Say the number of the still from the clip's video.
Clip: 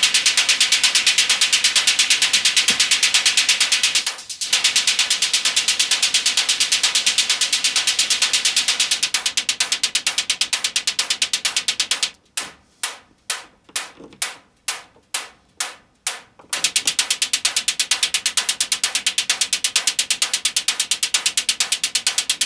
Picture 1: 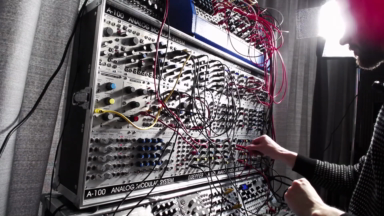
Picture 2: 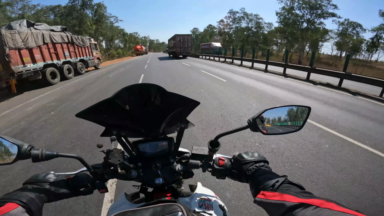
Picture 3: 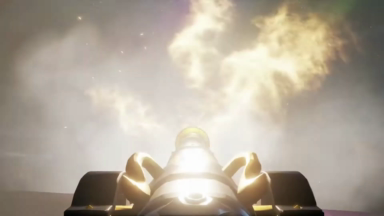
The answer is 1